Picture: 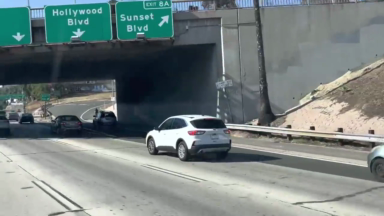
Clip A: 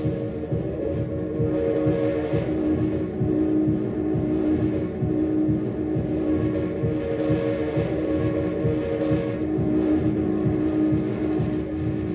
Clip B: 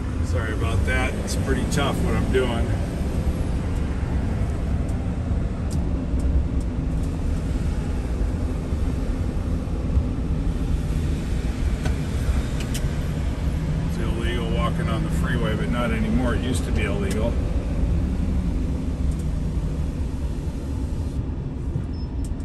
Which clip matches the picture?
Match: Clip B